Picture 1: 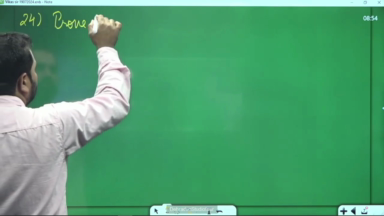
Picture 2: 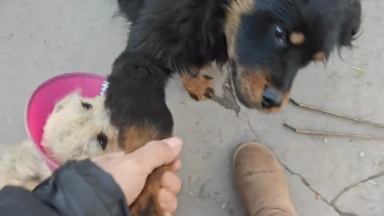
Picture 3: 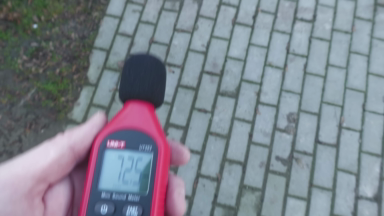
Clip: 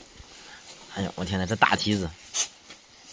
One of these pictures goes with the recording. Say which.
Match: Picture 2